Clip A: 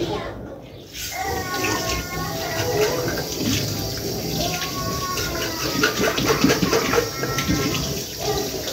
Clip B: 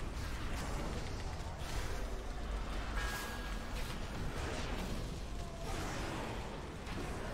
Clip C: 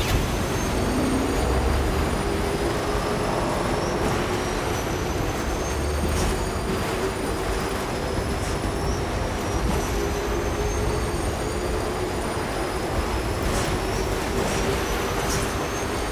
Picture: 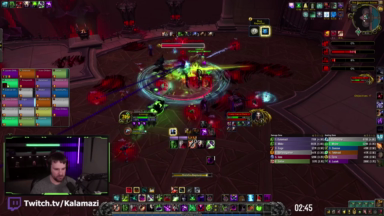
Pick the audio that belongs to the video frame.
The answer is B